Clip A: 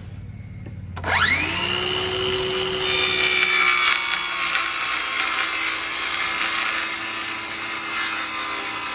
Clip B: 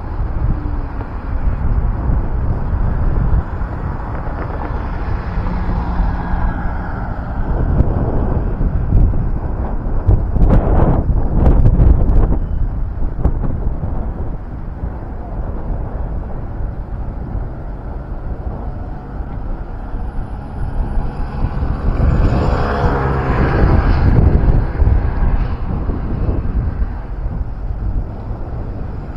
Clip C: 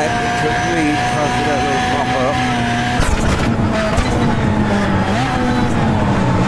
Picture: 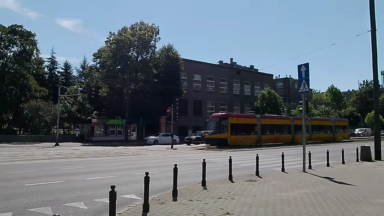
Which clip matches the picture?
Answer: B